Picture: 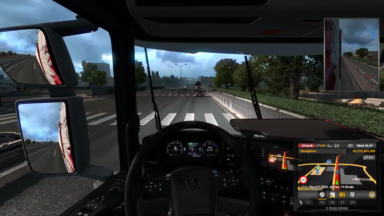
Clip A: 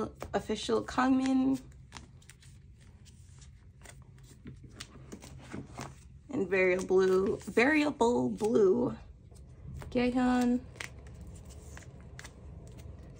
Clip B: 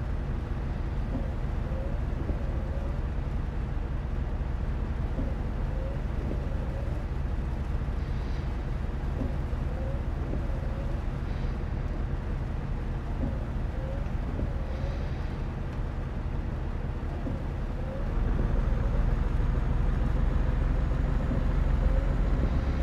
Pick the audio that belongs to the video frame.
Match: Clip B